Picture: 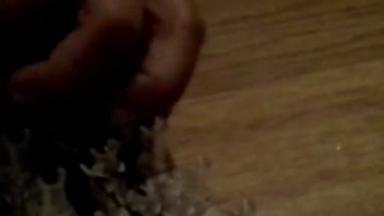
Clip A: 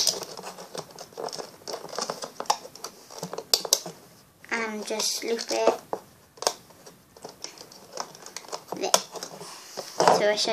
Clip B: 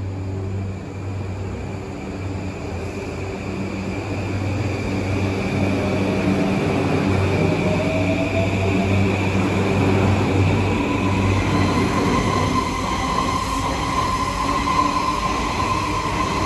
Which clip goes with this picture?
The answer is A